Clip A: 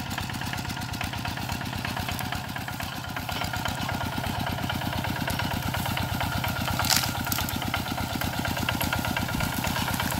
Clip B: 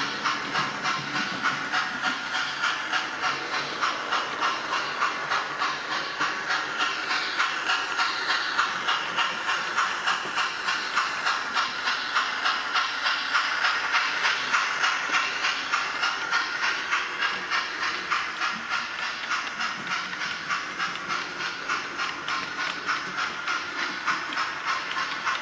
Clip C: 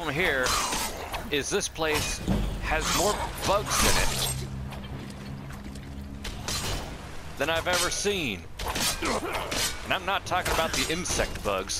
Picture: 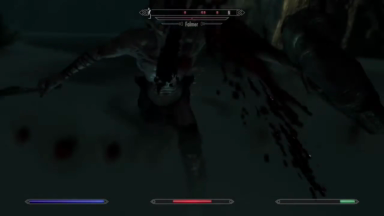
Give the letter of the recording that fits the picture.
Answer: C